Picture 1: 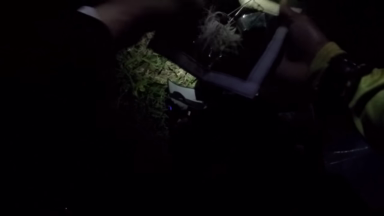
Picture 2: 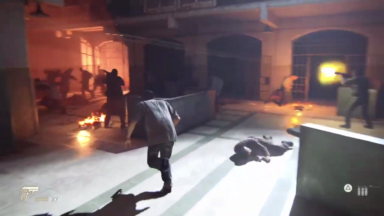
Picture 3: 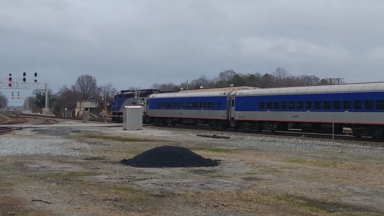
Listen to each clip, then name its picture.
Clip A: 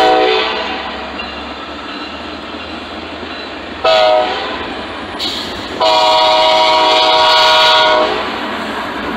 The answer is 3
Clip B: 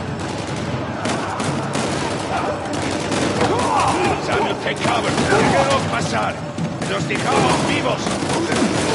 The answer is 2